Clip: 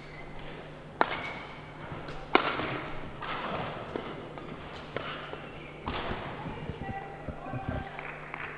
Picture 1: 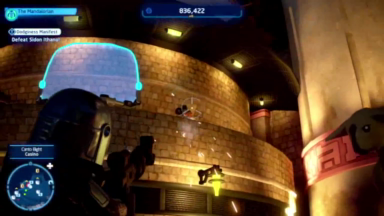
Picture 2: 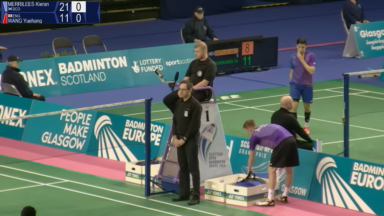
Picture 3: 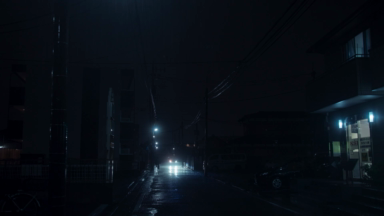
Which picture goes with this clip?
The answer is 2